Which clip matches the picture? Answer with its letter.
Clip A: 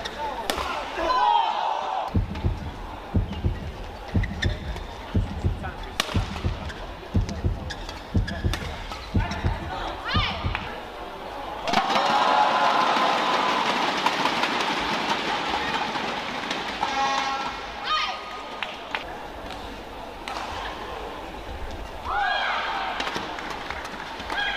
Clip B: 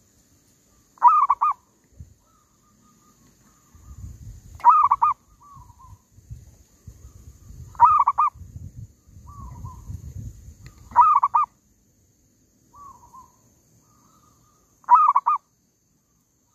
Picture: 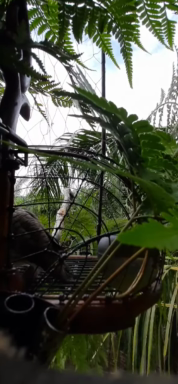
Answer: B